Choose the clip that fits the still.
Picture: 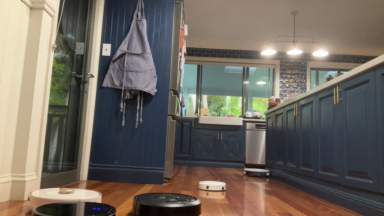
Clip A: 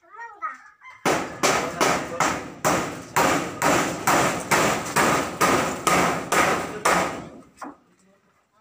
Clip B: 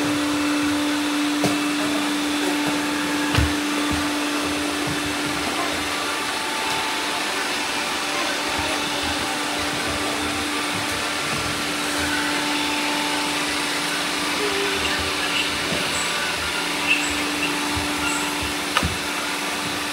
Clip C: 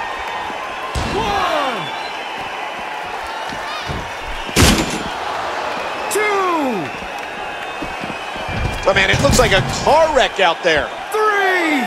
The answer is B